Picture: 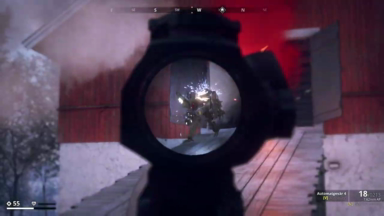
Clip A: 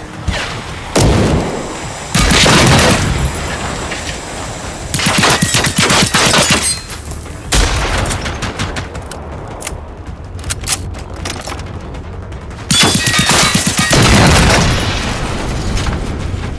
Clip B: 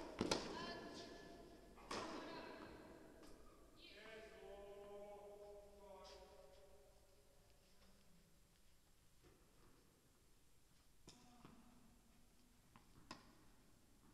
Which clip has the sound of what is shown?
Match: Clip A